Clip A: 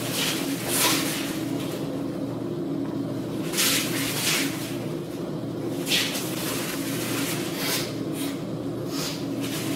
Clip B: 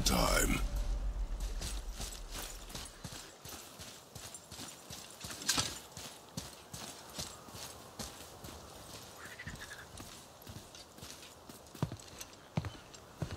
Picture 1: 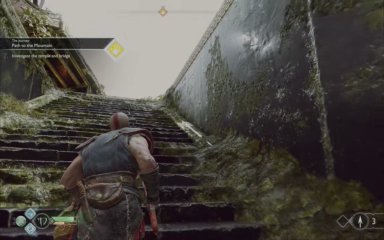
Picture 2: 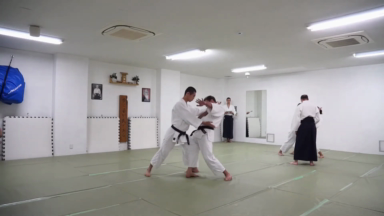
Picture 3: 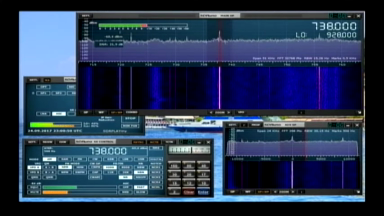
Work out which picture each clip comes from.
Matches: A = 2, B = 1